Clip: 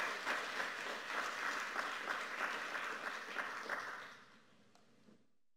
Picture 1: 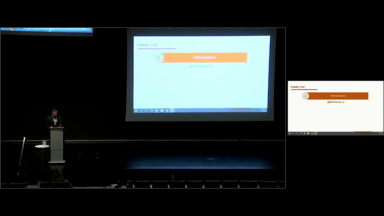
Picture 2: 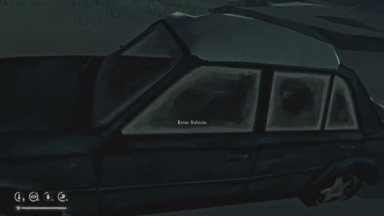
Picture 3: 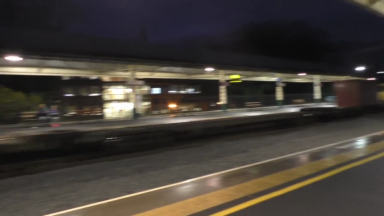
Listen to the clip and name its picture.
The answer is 1